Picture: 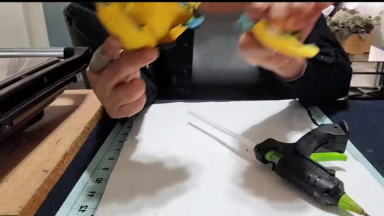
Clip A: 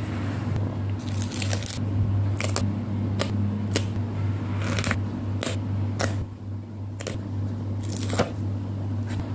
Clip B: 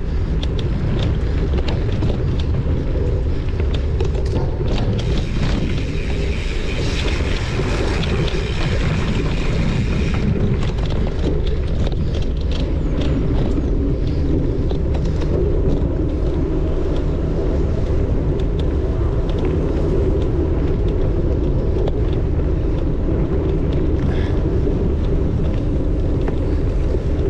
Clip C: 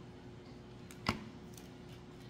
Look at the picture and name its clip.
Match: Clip C